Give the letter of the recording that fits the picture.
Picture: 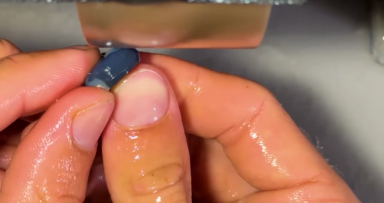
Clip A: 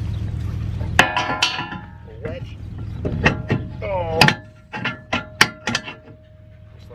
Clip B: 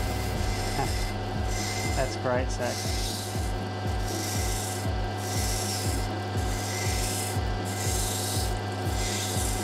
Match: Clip B